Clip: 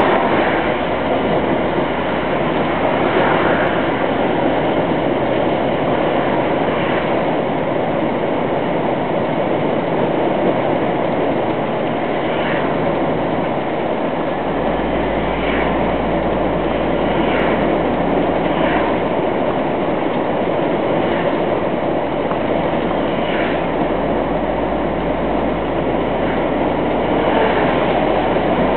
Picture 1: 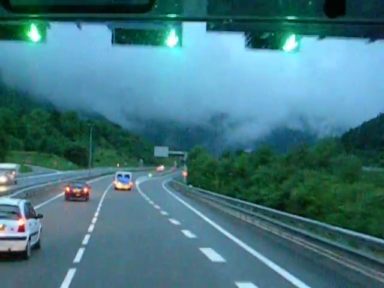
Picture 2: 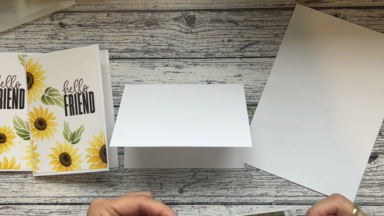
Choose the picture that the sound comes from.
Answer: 1